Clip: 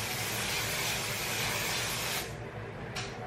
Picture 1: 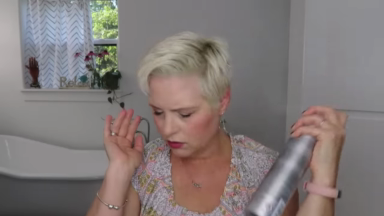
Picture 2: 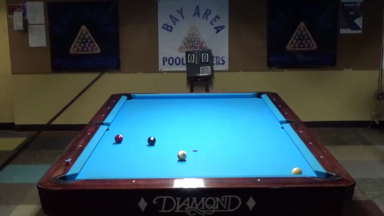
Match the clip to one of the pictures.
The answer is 1